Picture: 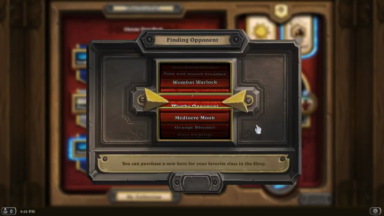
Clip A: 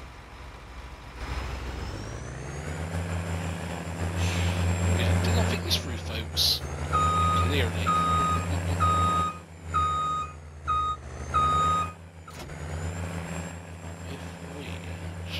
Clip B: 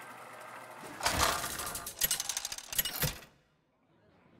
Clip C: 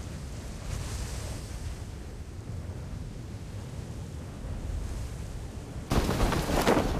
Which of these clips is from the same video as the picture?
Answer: B